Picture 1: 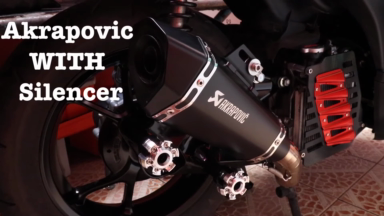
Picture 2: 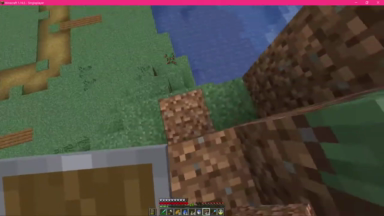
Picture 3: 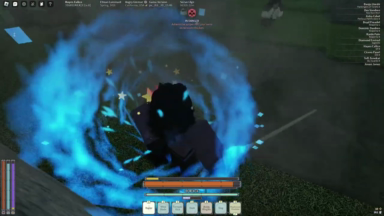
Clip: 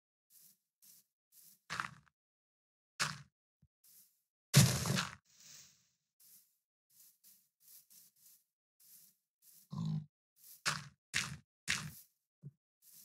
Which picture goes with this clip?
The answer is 2